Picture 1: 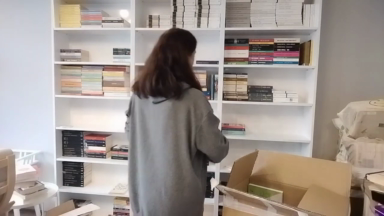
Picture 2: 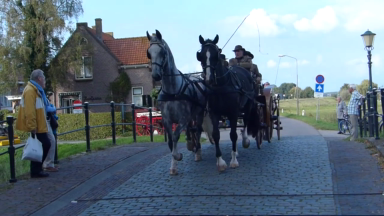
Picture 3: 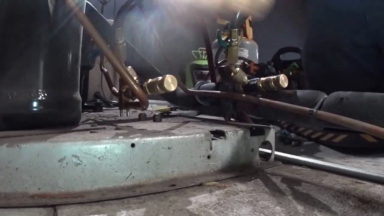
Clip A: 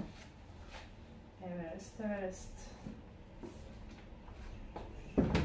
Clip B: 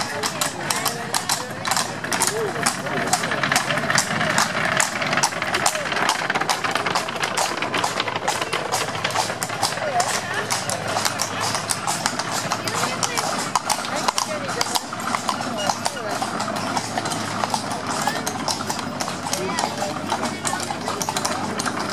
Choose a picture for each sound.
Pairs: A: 1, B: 2